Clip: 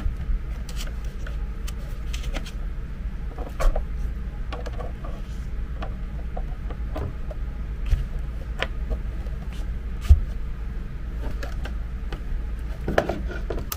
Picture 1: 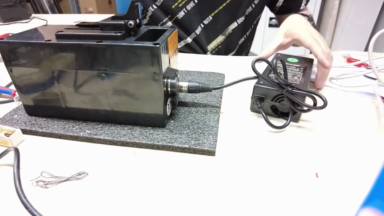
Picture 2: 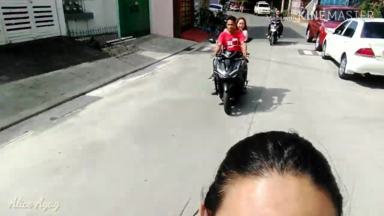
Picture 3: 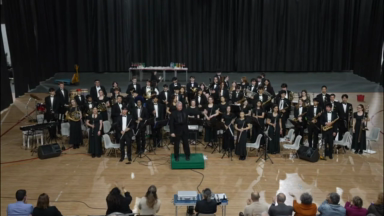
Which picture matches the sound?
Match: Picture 1